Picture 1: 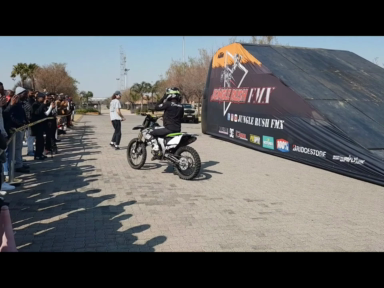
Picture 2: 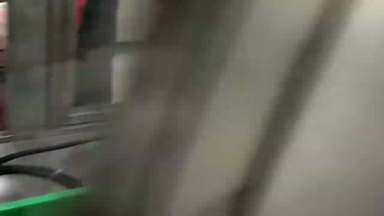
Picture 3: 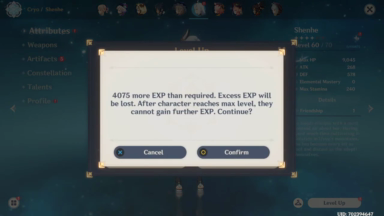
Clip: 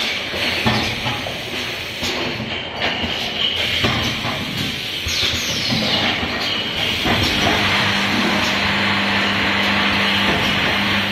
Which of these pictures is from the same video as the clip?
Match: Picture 2